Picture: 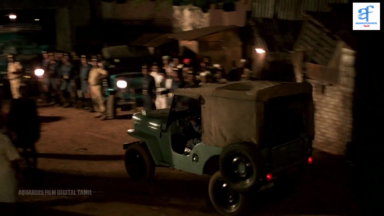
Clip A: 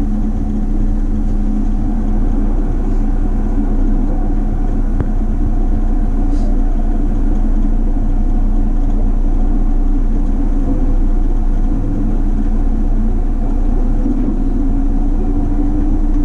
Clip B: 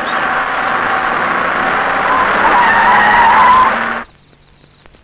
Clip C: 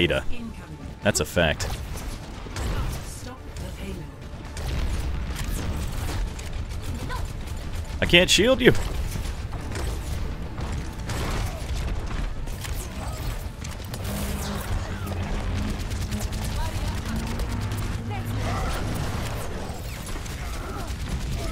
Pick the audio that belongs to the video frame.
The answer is B